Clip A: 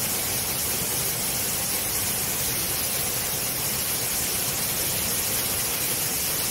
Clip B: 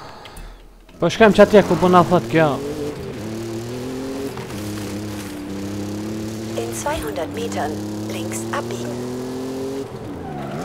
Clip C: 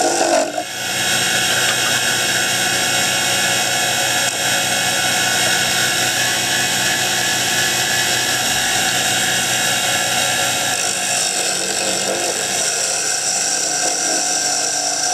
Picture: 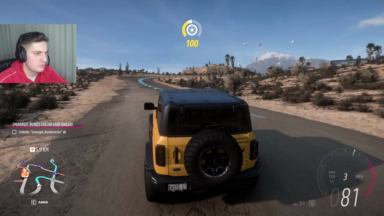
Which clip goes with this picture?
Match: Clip B